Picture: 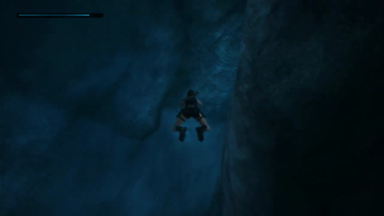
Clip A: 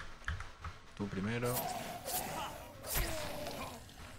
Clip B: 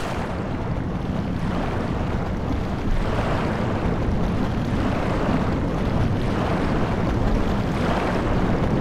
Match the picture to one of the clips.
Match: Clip B